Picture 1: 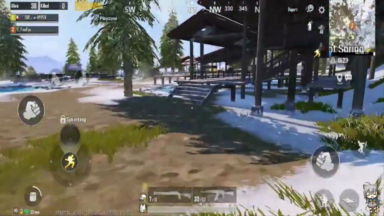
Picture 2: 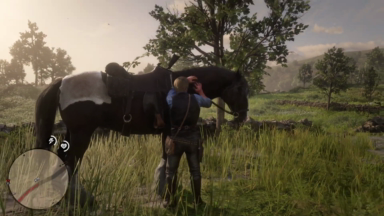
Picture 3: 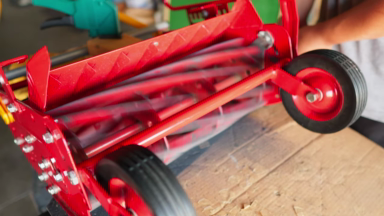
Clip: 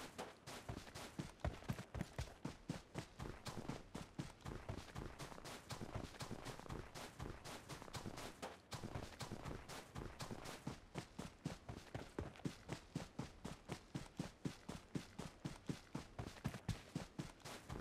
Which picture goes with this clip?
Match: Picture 1